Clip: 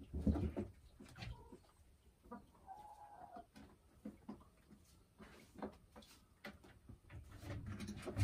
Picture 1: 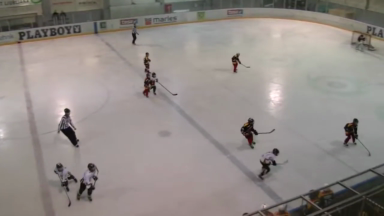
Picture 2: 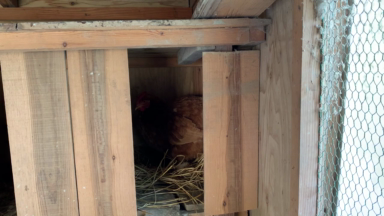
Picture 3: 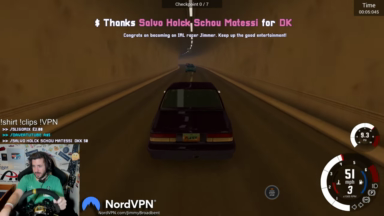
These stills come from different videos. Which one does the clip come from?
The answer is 2